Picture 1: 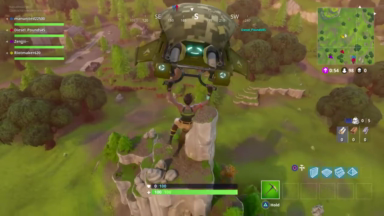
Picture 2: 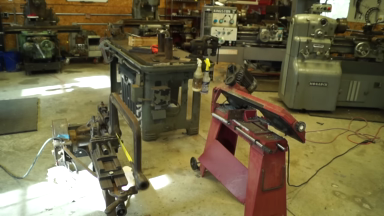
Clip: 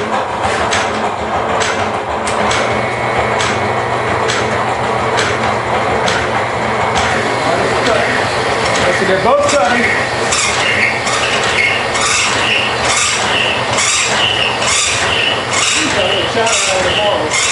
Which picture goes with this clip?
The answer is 2